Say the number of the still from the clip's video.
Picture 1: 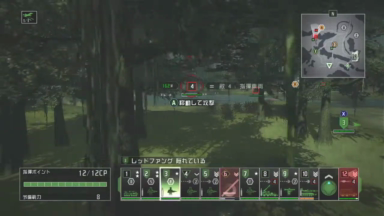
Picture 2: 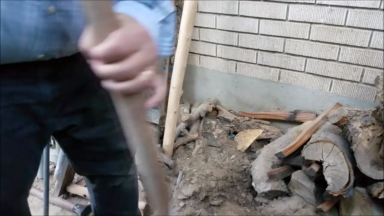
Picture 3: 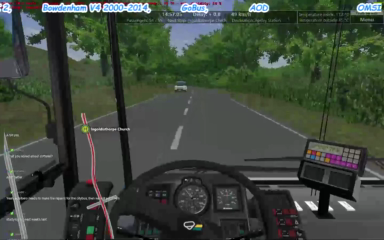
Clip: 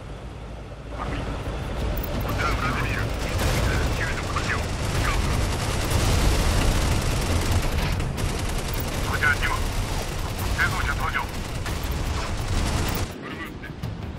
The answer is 1